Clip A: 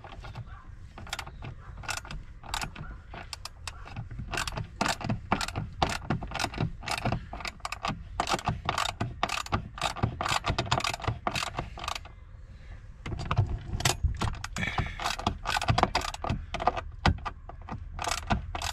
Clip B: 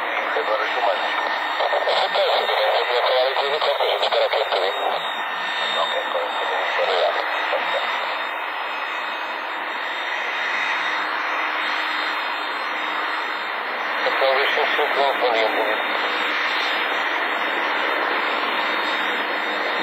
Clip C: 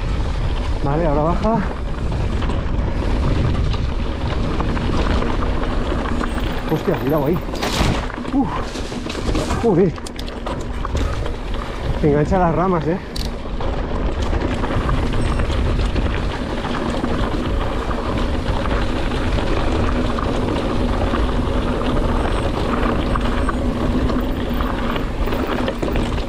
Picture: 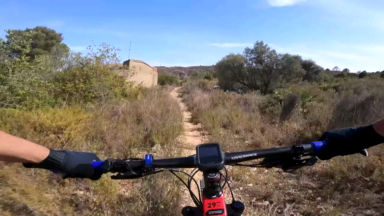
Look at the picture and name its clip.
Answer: C